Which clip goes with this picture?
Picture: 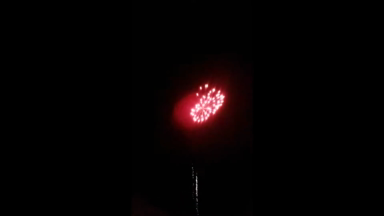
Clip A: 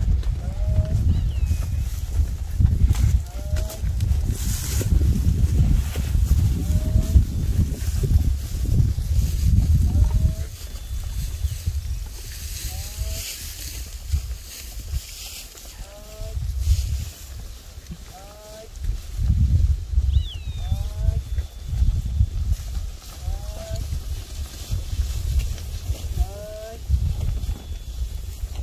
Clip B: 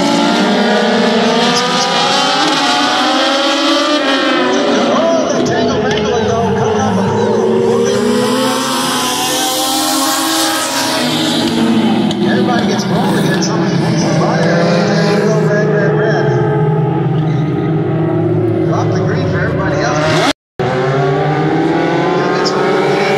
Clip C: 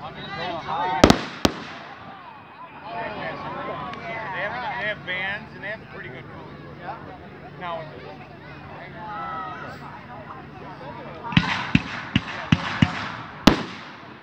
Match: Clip C